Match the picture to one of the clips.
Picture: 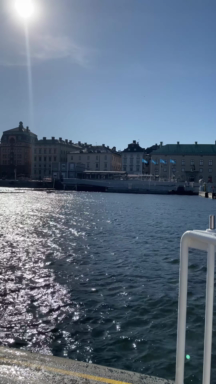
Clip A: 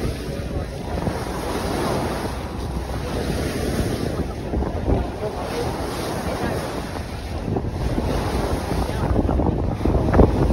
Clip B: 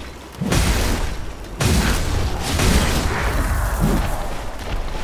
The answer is A